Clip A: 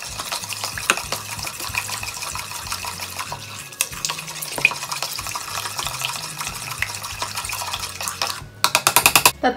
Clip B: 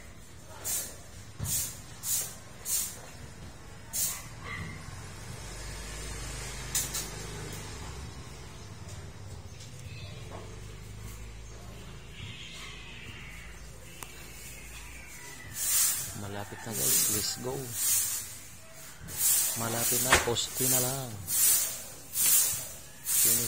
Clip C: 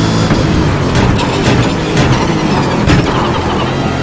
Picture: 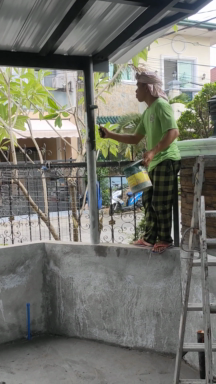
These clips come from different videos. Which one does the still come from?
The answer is B